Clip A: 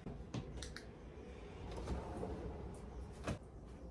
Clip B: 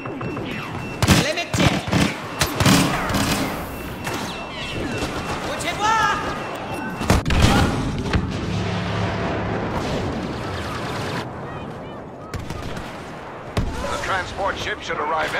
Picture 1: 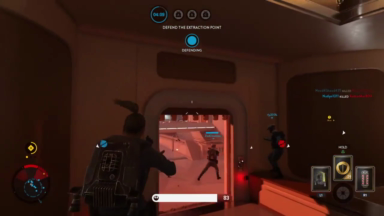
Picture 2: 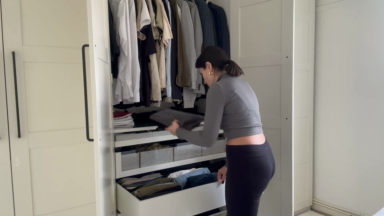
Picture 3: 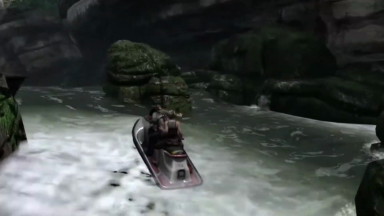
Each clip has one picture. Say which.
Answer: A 2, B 1